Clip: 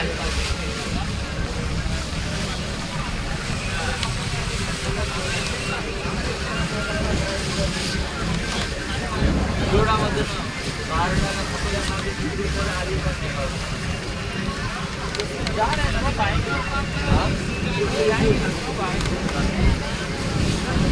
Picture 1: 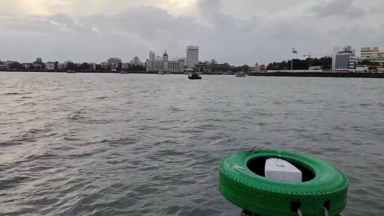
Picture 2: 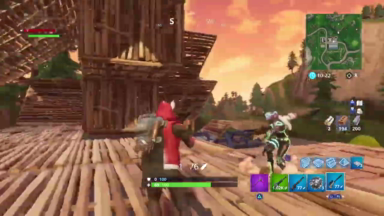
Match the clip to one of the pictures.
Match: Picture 1